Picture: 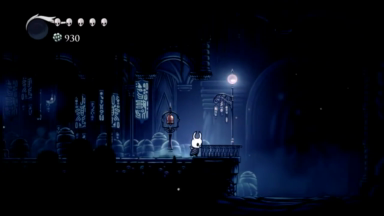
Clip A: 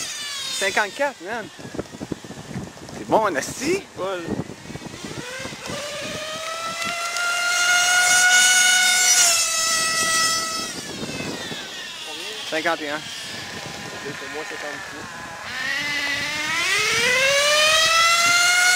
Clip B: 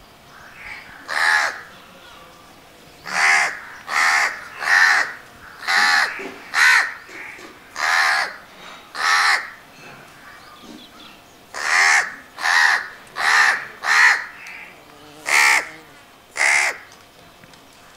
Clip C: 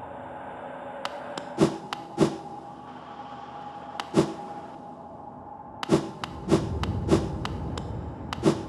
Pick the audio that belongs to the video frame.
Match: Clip C